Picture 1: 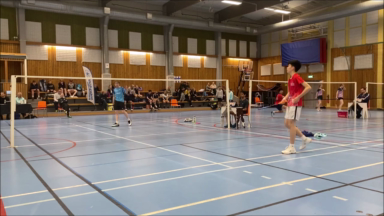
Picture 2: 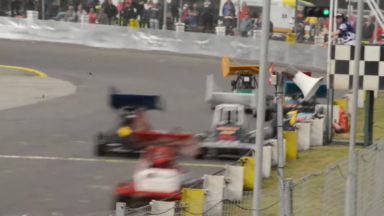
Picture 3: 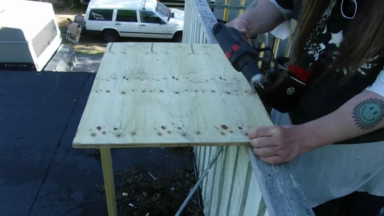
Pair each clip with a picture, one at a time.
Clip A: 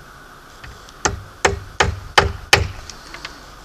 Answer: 3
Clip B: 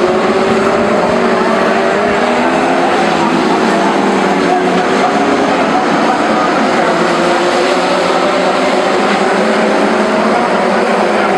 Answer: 2